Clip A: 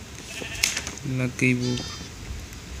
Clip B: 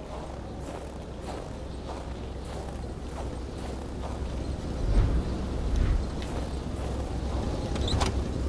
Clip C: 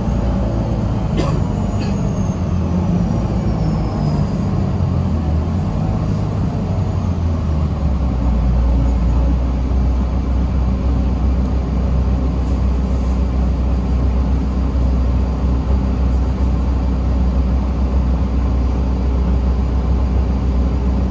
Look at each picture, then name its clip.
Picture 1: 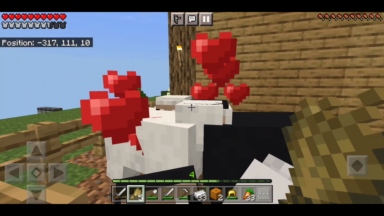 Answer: A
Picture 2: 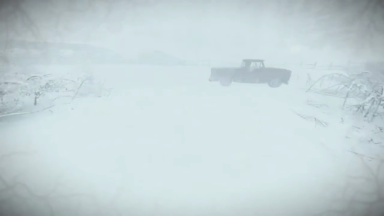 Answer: B